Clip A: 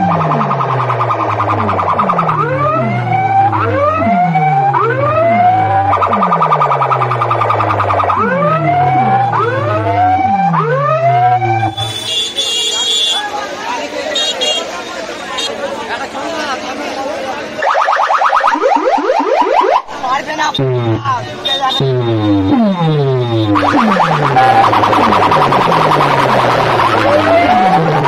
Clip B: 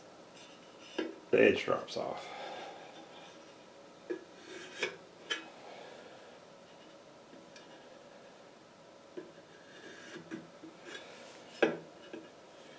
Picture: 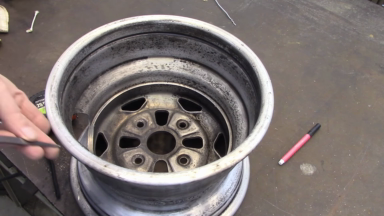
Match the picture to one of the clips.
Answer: B